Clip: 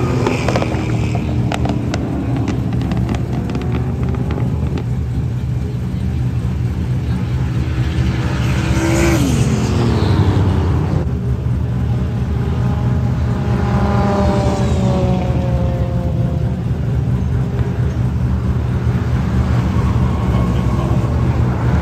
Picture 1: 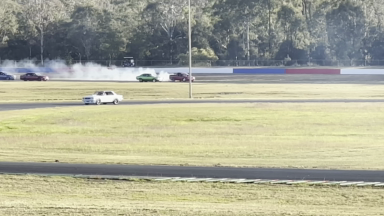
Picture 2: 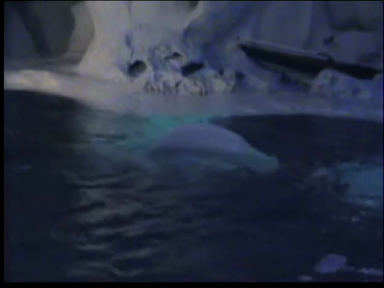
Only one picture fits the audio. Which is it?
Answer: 1